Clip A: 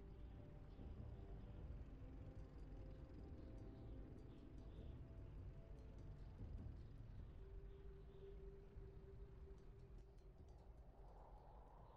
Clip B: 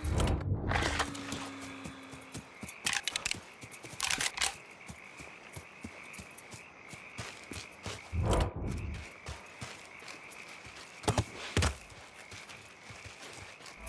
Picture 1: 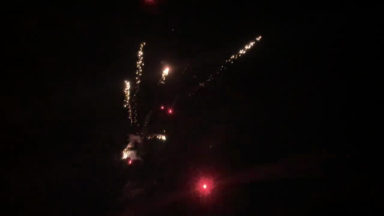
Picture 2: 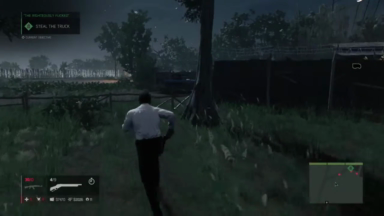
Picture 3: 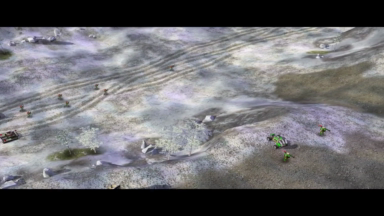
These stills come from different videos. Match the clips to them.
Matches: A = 3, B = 2